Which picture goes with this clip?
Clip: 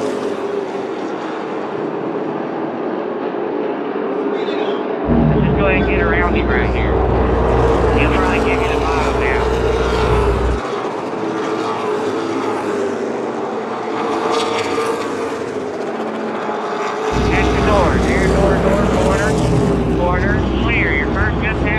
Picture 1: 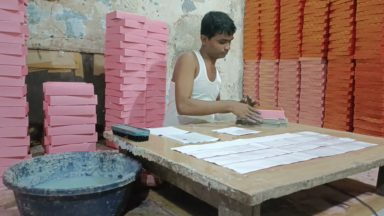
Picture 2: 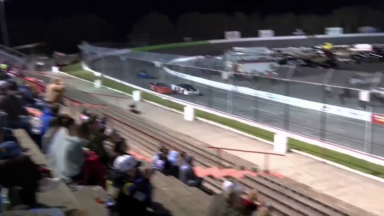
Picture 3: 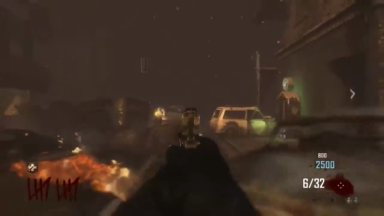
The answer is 2